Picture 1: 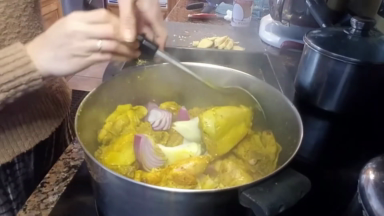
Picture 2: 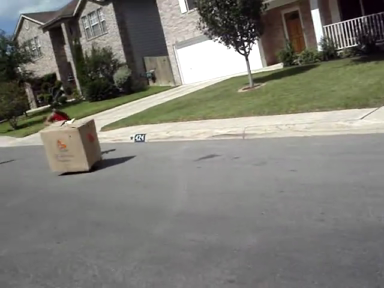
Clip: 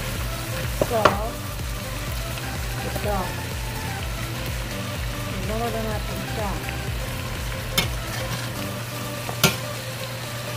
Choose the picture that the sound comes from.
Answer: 1